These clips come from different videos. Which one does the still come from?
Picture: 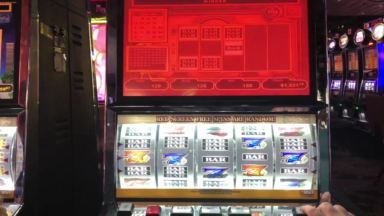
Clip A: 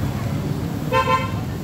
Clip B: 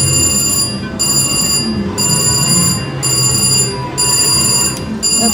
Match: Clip B